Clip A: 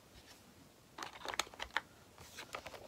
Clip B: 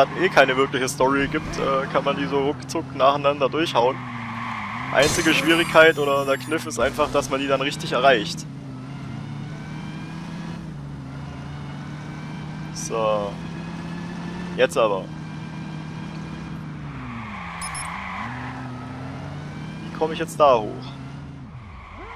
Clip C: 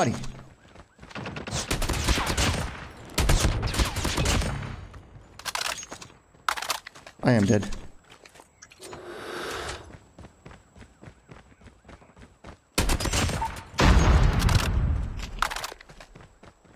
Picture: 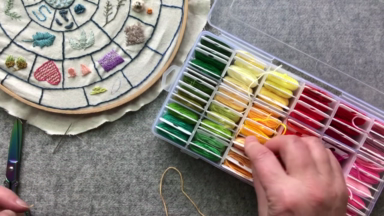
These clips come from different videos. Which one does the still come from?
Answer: A